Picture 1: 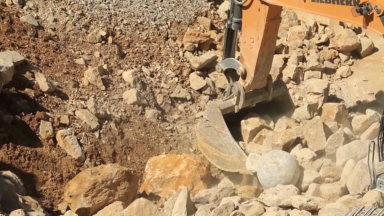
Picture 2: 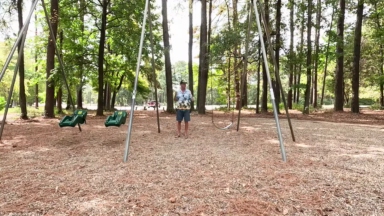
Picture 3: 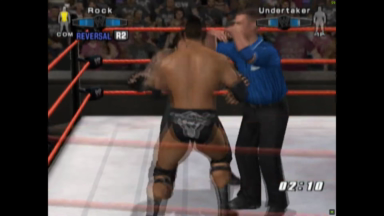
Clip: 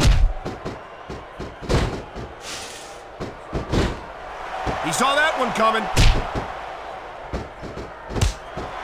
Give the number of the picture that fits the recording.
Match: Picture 3